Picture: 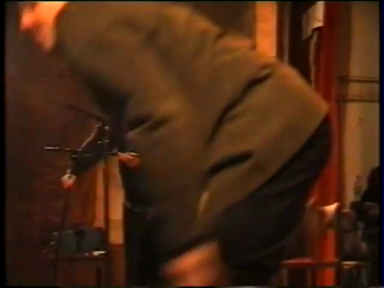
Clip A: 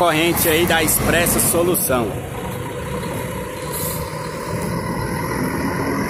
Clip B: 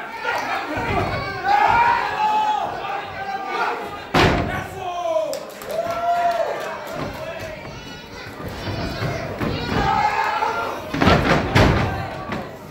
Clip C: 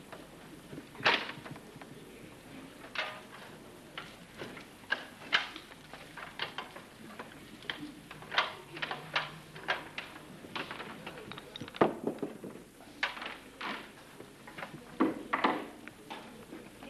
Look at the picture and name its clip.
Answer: C